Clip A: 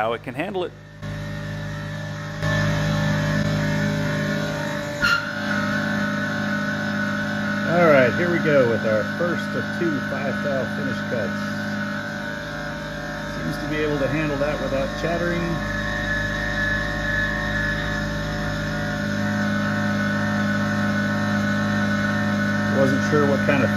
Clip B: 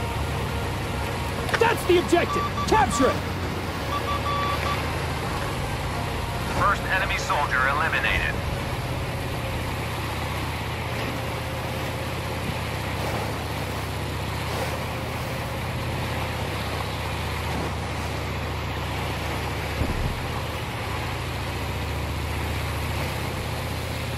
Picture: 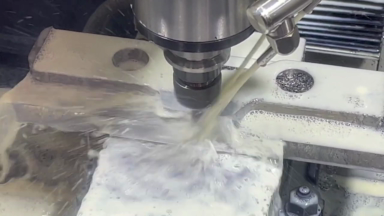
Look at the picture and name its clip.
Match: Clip A